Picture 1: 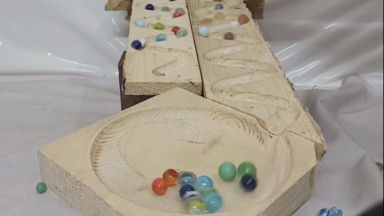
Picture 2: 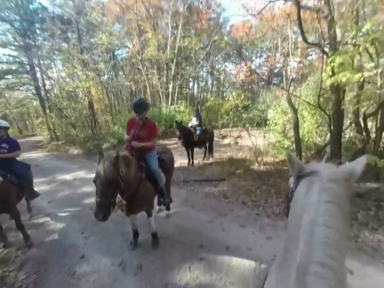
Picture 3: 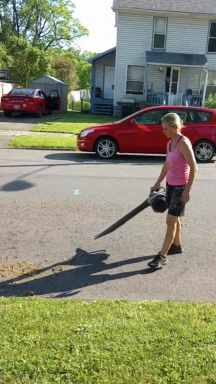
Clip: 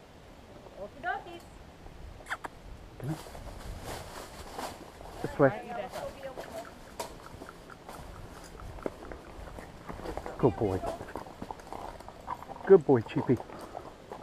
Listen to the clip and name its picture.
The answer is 2